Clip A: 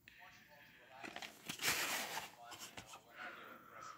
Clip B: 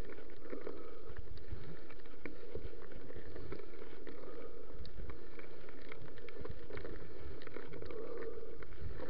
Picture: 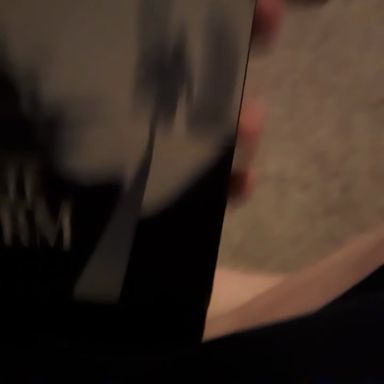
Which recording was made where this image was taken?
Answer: A